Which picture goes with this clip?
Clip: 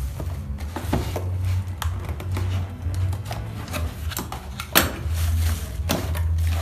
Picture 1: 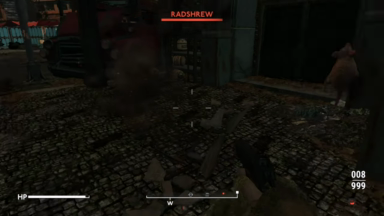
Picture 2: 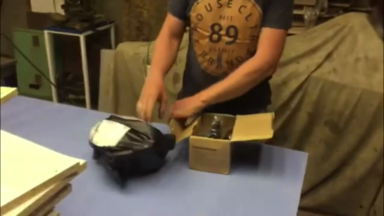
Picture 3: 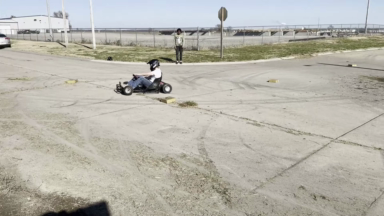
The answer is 2